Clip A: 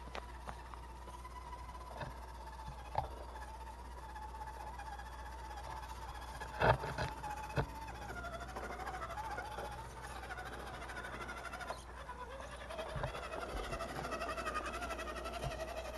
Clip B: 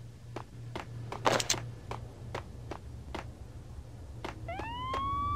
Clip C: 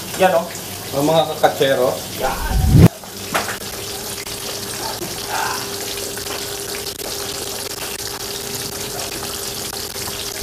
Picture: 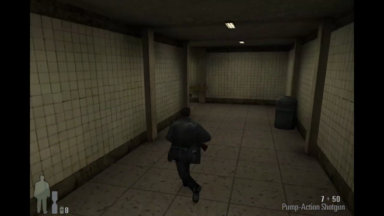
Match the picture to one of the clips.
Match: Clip B